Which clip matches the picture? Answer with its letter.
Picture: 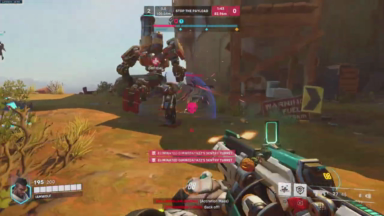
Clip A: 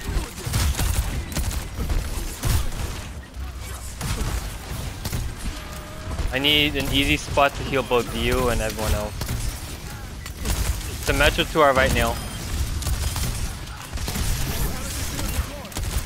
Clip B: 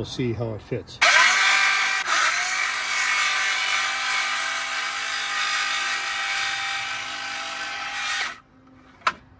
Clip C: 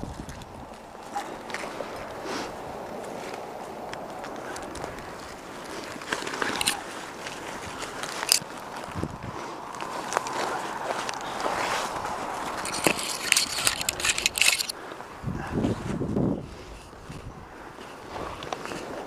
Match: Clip A